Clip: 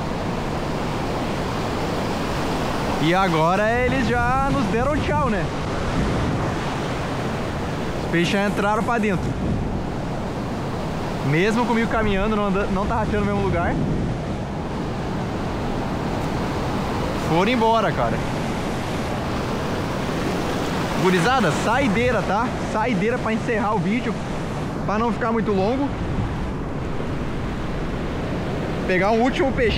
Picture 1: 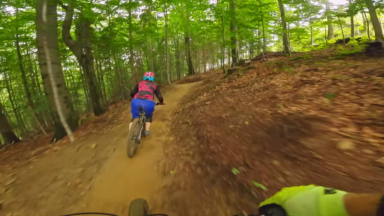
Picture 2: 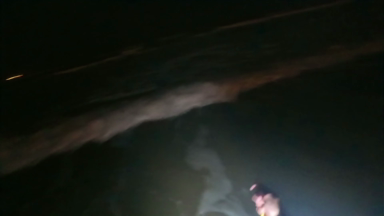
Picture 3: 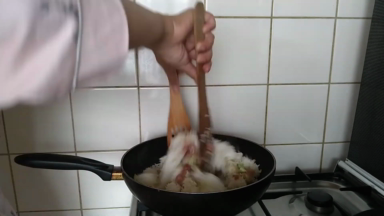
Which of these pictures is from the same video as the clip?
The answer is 2